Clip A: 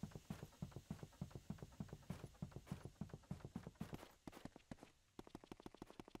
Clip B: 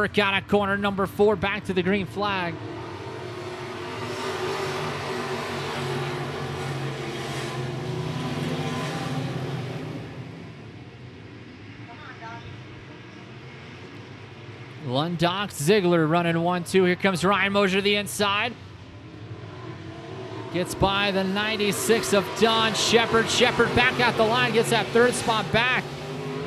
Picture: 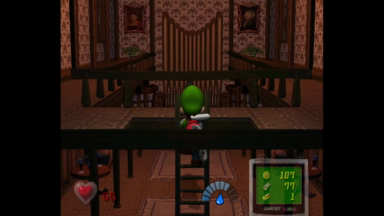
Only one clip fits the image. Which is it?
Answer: A